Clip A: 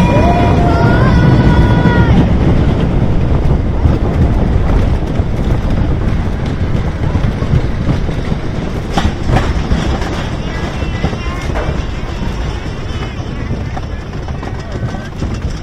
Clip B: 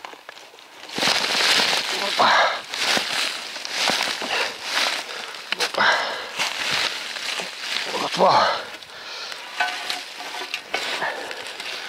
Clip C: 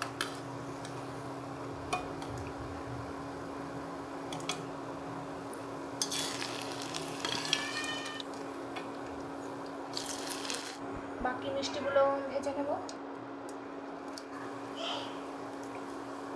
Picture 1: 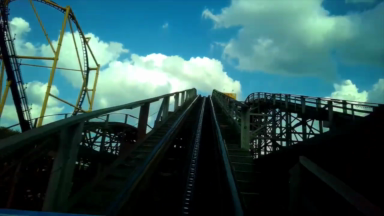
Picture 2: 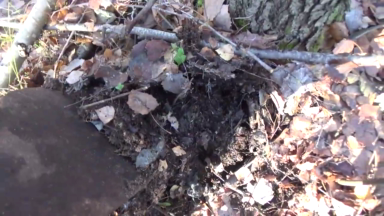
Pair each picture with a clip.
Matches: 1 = A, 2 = B